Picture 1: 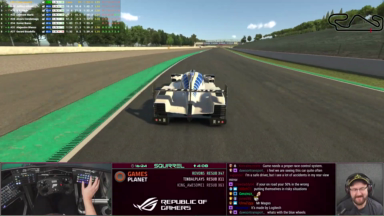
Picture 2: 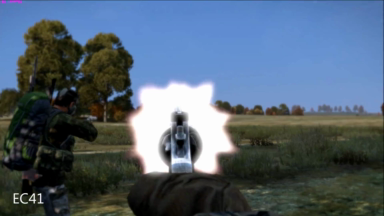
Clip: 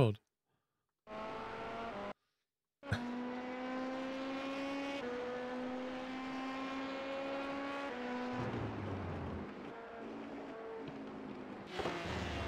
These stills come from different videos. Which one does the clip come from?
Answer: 1